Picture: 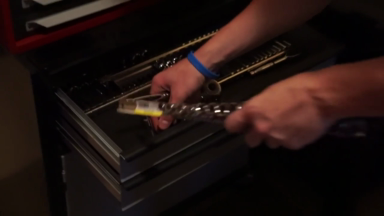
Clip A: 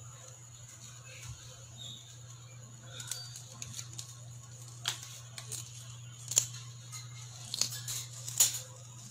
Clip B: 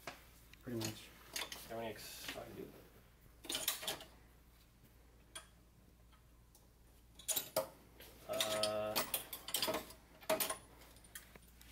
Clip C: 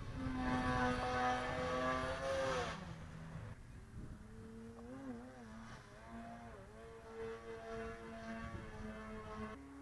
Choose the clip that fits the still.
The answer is B